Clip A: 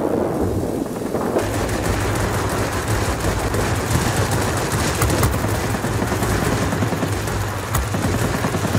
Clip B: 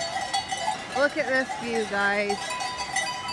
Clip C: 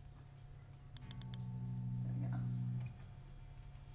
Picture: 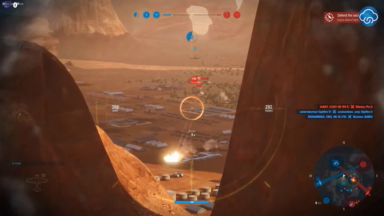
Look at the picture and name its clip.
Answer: A